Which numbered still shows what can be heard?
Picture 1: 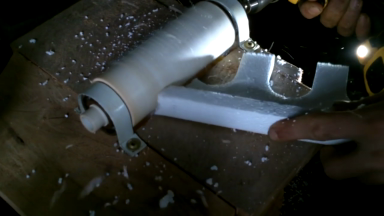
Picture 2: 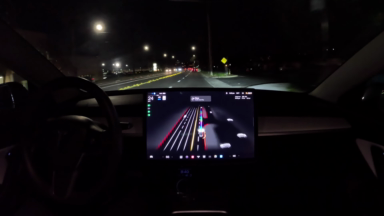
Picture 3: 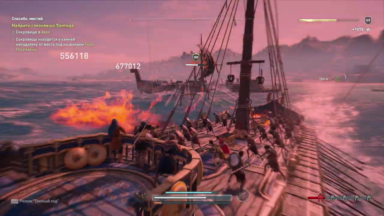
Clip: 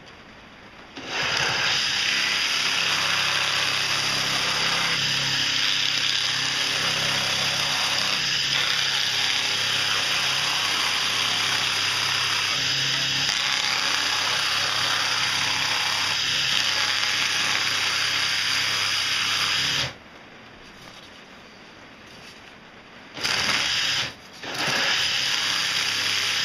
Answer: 1